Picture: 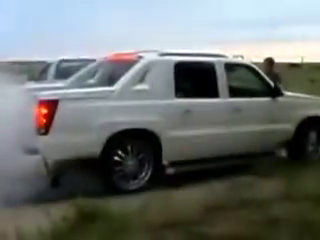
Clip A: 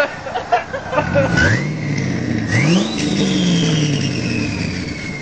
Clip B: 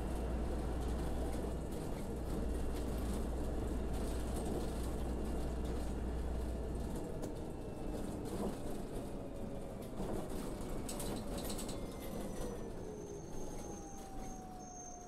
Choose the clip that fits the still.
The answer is A